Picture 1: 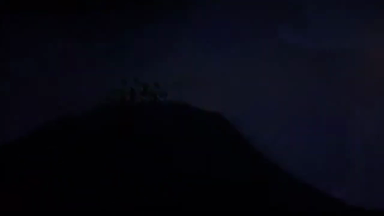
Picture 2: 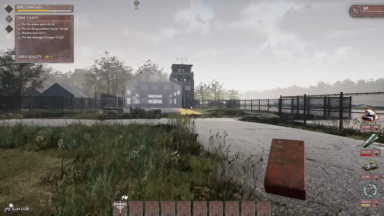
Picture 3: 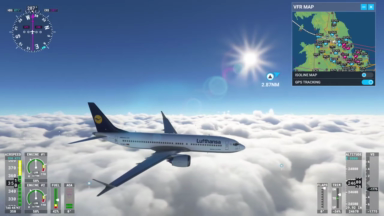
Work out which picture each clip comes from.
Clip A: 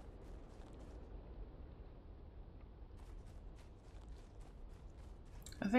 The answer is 2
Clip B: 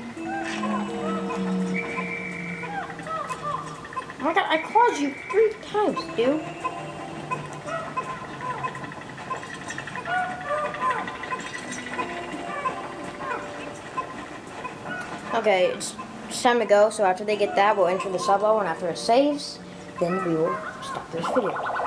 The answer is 1